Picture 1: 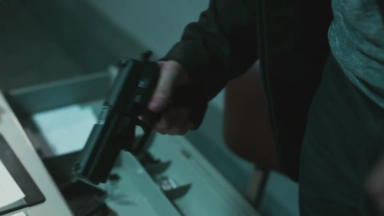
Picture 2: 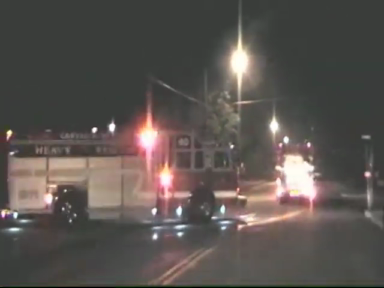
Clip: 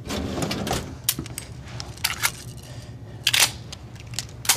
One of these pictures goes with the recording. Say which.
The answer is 1